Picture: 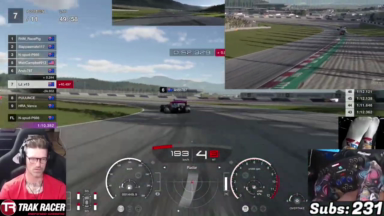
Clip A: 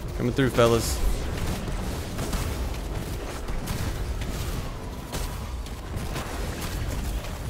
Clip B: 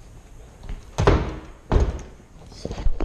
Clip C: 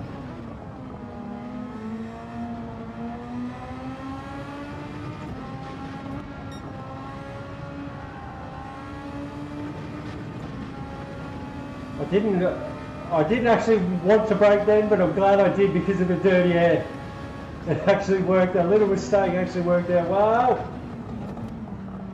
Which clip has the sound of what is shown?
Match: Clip C